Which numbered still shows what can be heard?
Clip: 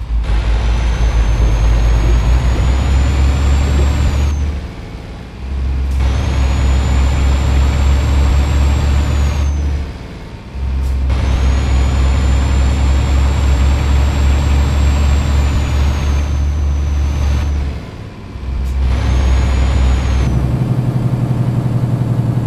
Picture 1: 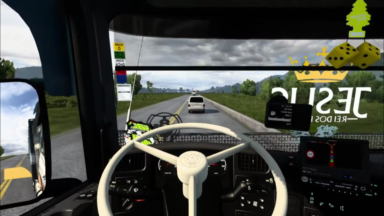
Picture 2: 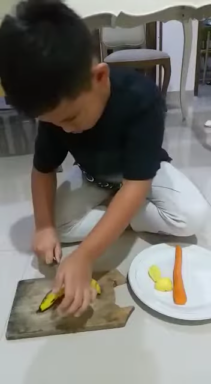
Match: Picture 1